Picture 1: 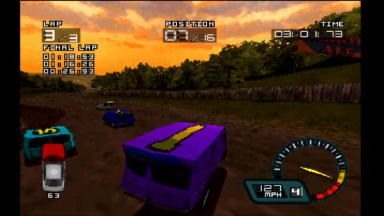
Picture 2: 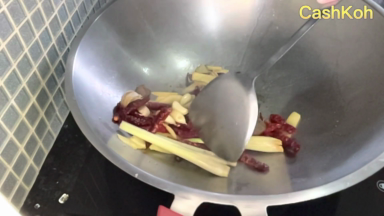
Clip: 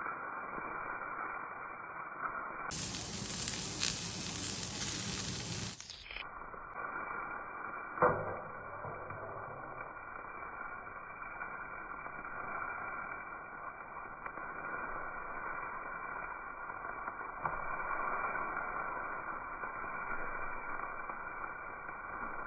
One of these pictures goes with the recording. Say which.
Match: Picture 2